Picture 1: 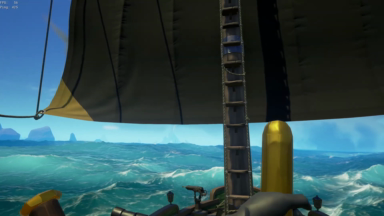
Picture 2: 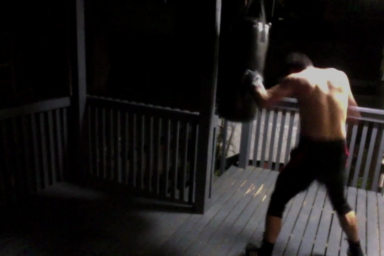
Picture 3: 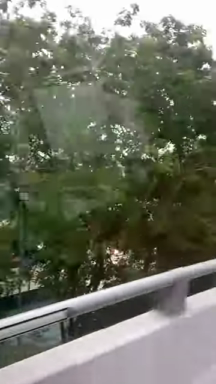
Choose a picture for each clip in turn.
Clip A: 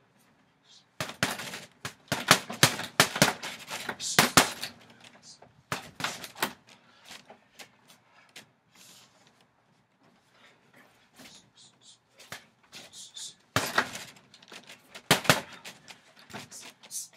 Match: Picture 2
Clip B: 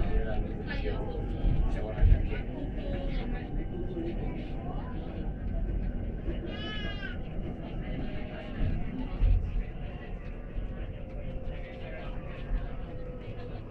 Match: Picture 3